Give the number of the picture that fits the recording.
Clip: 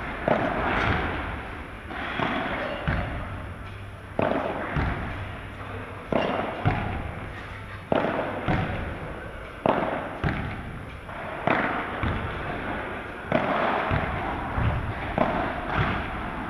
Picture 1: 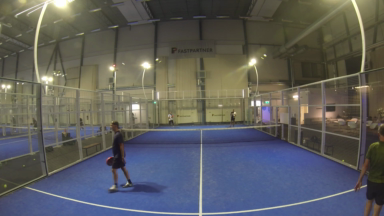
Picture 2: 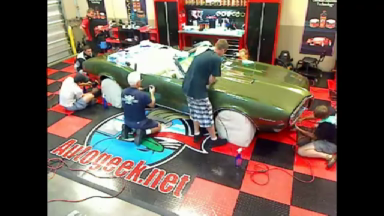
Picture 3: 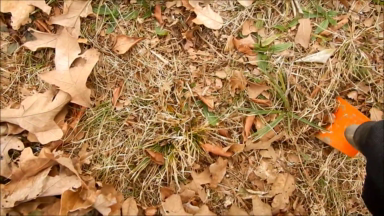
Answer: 1